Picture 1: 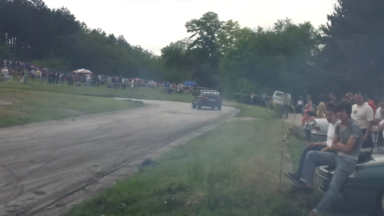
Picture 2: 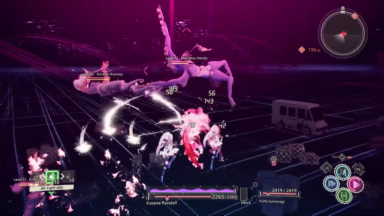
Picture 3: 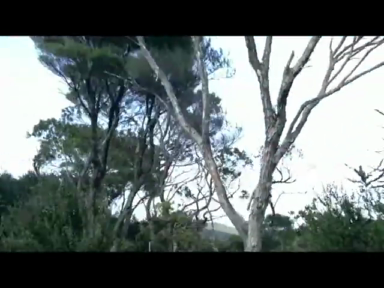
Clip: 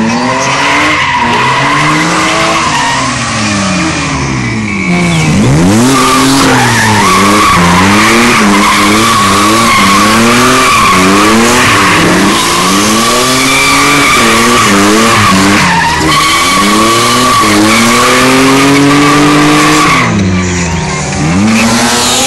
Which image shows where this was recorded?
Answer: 1